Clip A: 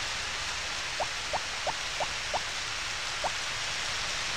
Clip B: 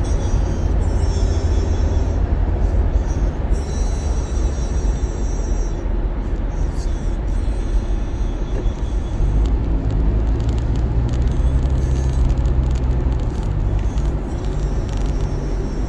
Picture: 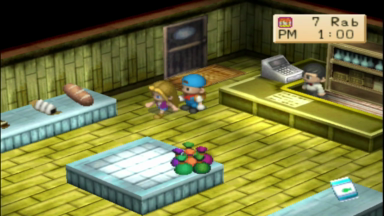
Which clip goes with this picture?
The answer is A